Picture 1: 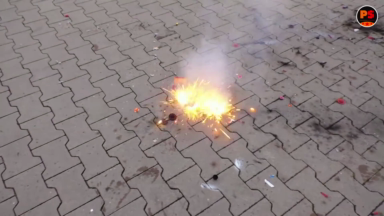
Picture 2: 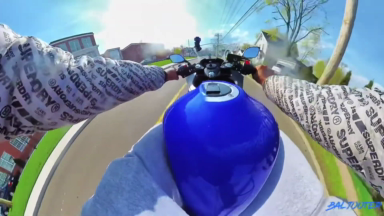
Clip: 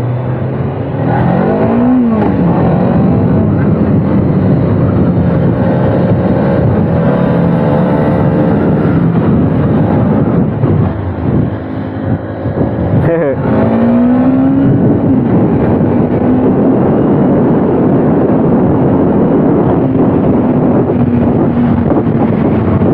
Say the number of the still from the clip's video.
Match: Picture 2